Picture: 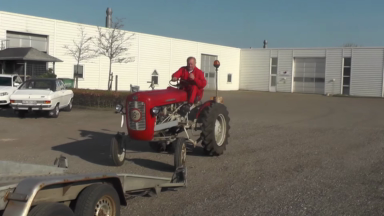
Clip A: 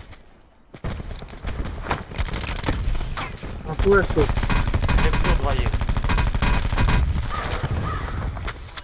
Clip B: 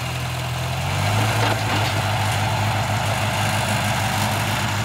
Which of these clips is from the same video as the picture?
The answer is B